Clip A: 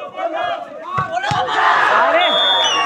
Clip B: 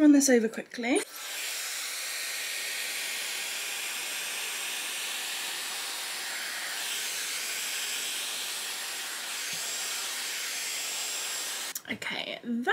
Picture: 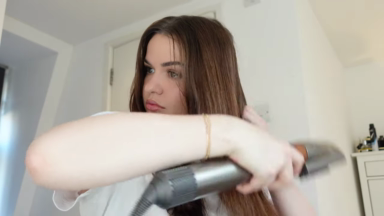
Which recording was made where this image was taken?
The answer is B